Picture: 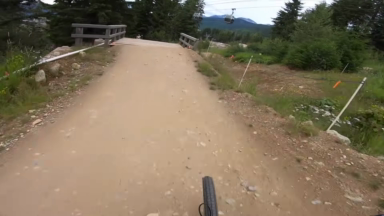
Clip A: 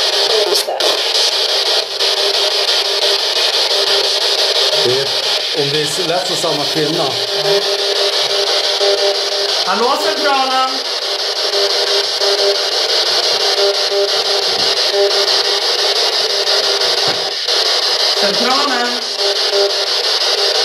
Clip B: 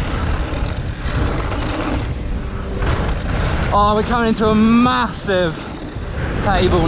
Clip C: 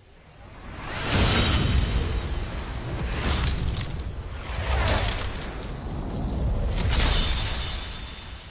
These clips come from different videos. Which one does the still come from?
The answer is B